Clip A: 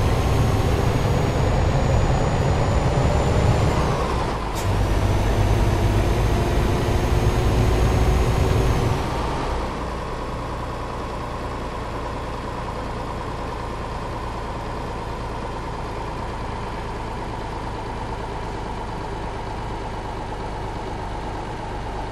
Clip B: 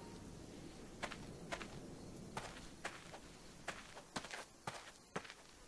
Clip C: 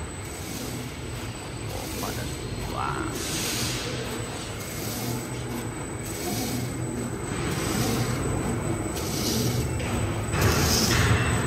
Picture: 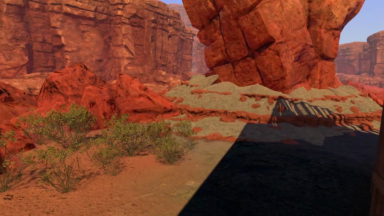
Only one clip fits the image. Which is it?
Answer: B